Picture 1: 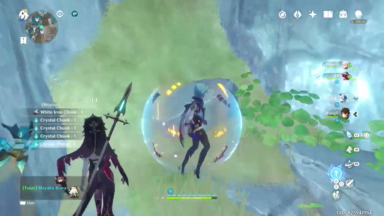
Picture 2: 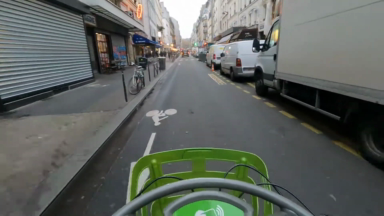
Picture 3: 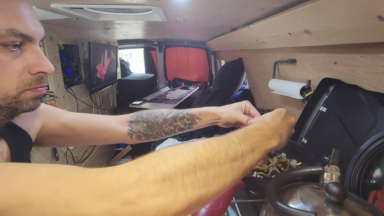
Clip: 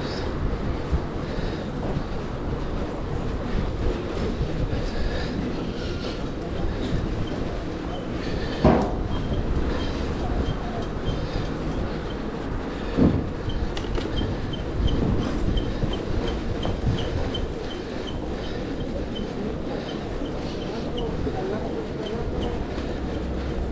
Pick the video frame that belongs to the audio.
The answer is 2